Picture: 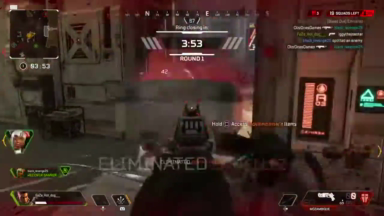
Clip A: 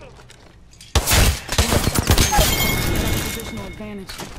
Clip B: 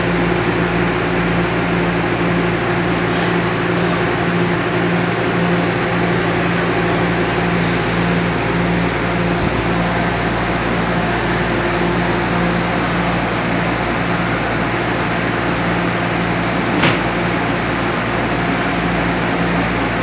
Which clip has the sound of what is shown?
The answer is A